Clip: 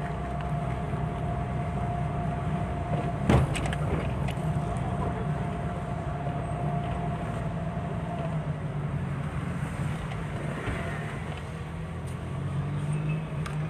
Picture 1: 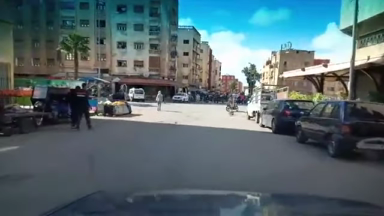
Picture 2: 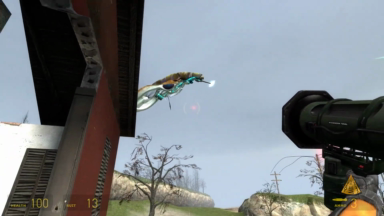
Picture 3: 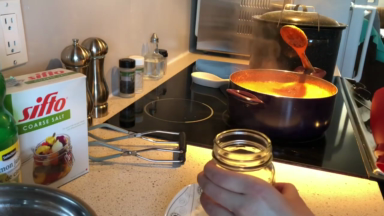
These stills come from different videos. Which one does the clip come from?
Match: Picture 1